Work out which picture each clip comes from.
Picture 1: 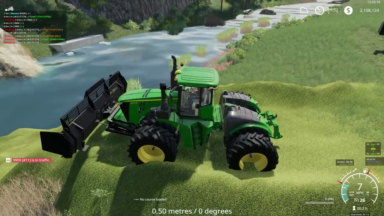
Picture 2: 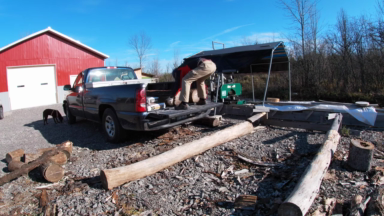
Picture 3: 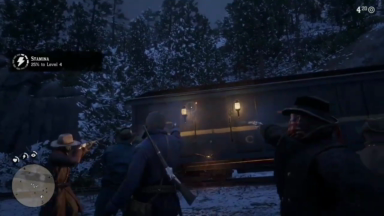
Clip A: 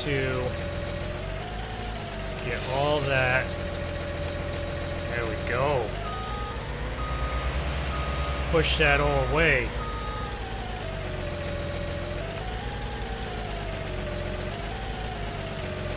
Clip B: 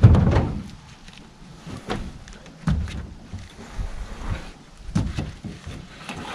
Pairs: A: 1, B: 2